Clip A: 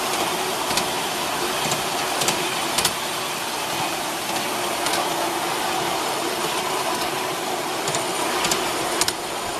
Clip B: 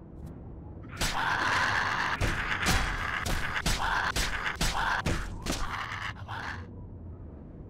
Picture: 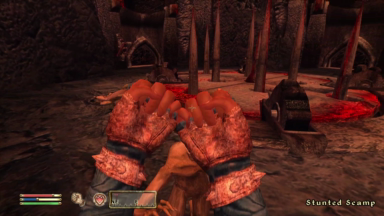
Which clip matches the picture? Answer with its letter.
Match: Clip B